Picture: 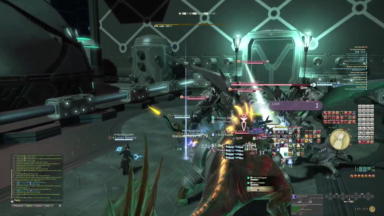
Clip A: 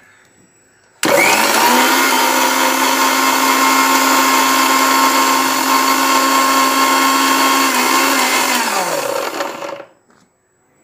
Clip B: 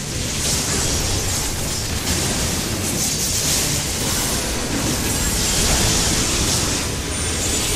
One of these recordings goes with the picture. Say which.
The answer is B